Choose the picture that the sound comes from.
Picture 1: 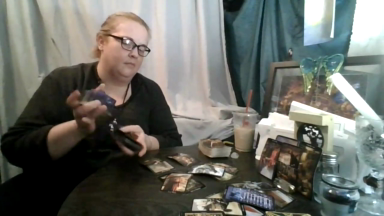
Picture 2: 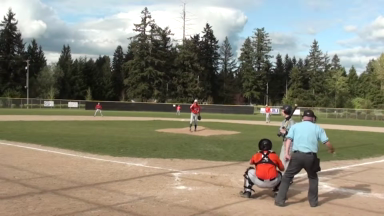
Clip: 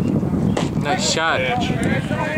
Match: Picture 2